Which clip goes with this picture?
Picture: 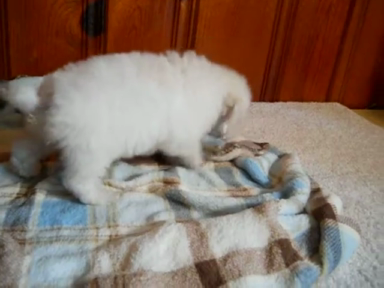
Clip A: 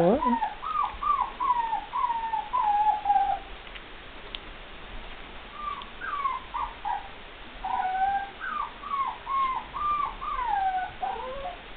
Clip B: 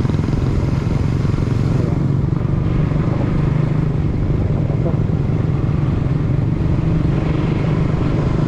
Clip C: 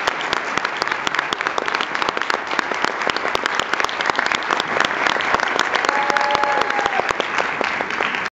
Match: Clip A